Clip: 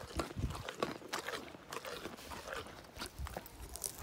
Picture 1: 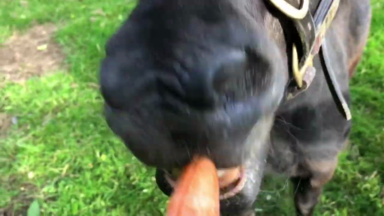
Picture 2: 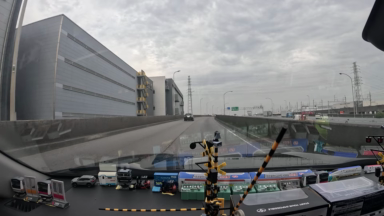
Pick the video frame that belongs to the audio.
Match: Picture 1